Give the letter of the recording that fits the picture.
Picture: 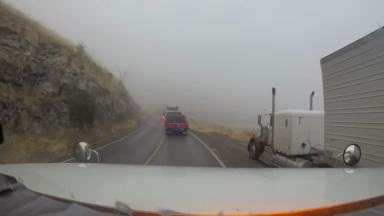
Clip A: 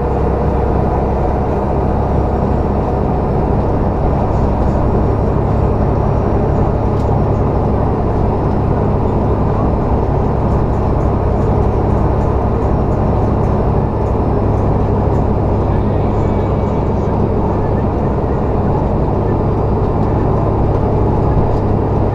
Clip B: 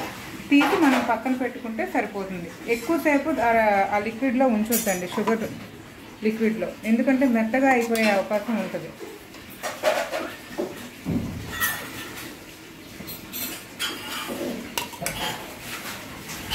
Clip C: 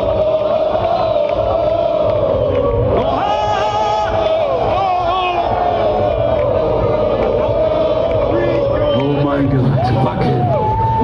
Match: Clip A